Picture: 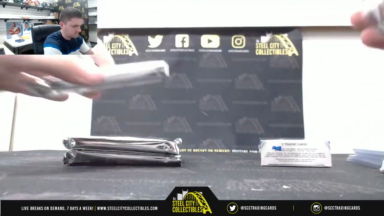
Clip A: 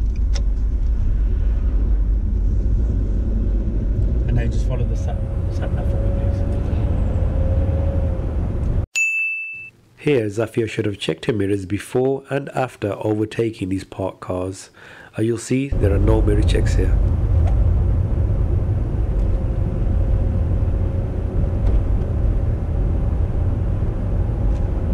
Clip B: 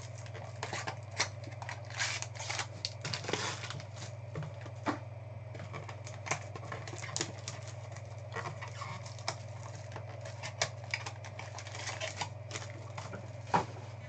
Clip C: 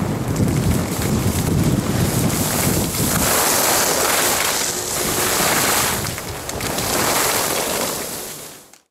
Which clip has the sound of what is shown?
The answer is B